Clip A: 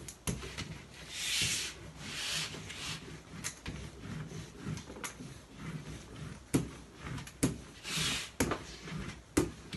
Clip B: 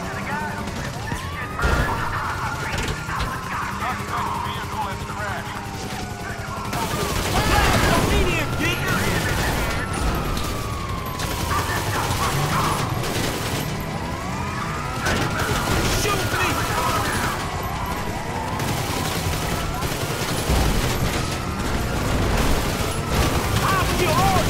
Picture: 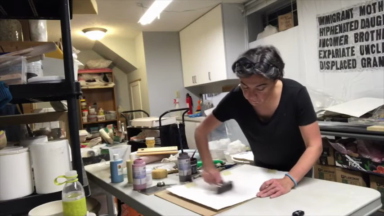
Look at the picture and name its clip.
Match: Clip A